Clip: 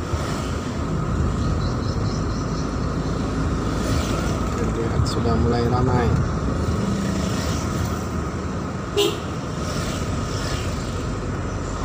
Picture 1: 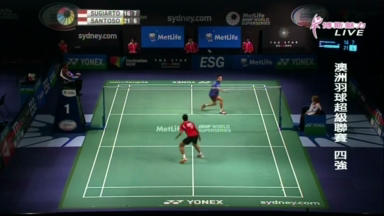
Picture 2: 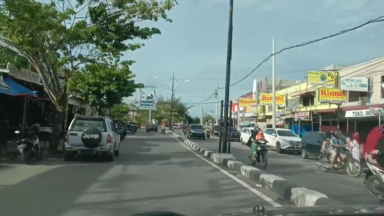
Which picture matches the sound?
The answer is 2